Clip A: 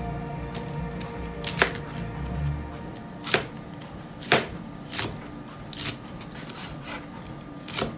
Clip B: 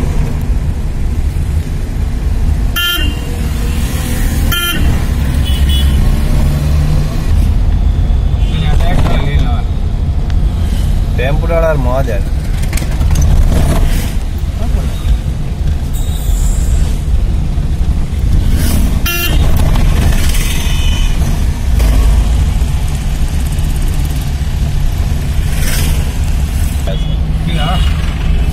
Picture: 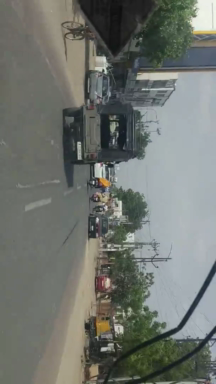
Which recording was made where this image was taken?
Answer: B